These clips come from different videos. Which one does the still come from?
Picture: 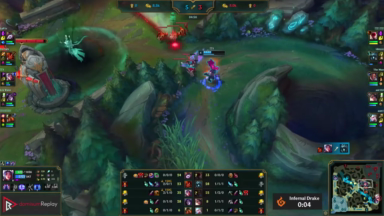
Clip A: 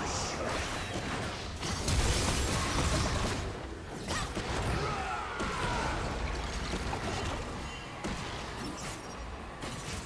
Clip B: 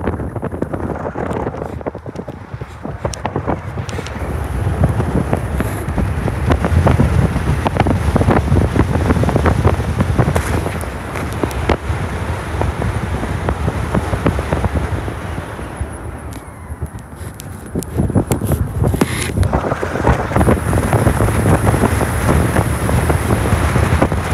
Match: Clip A